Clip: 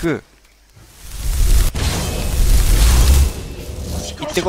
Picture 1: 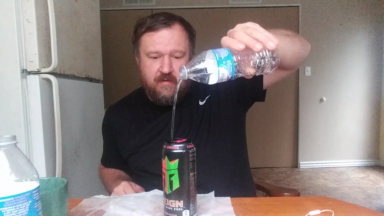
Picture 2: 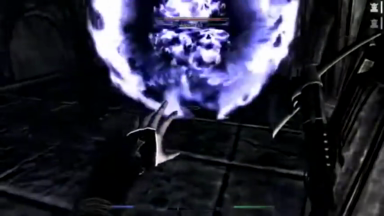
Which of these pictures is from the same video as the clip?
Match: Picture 2